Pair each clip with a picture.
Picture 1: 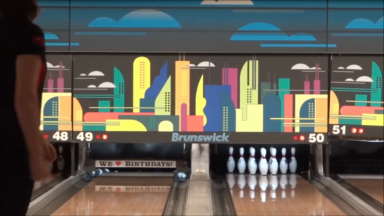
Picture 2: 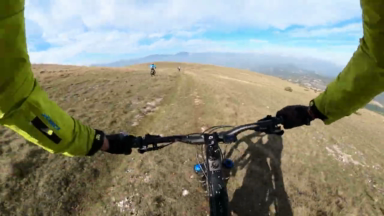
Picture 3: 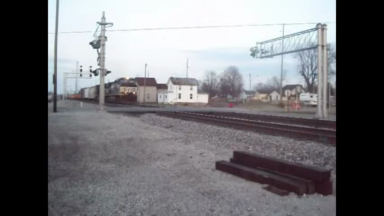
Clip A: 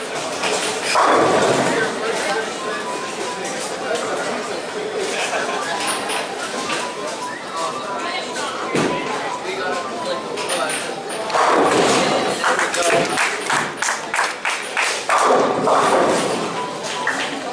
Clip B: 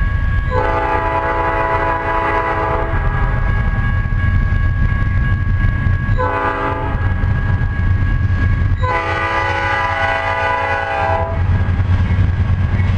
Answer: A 1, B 3